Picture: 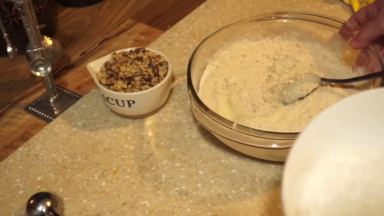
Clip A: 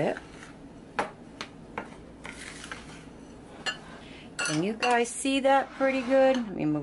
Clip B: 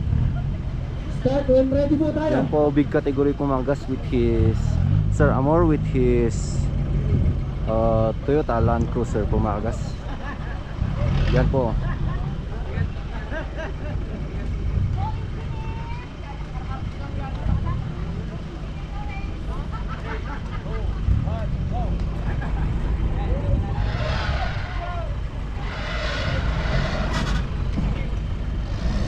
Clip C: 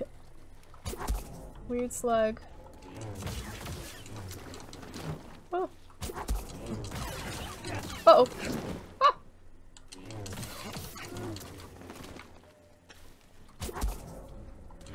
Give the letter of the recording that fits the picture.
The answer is A